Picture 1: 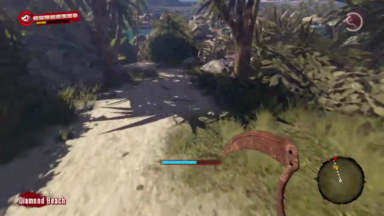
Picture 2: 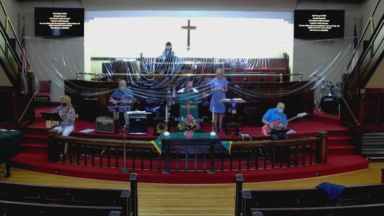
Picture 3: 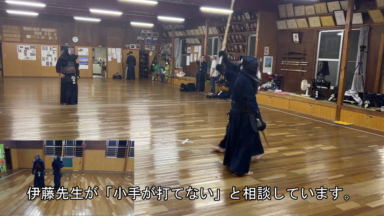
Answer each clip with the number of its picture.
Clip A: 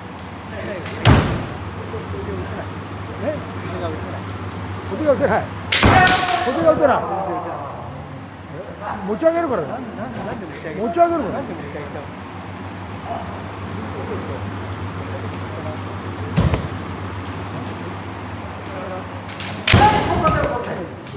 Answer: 3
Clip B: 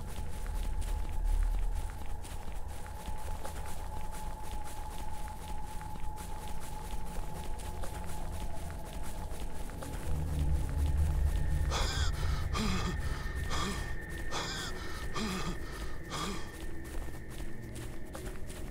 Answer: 1